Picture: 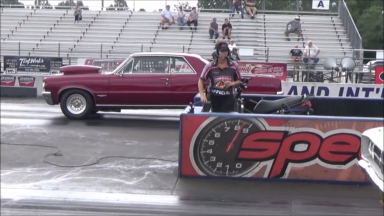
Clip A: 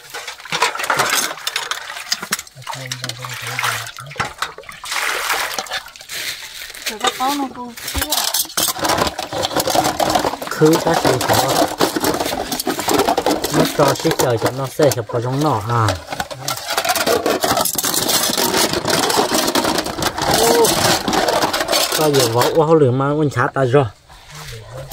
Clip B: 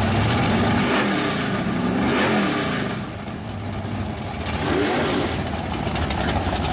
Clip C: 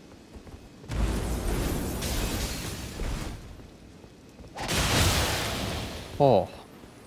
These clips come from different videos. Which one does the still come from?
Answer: B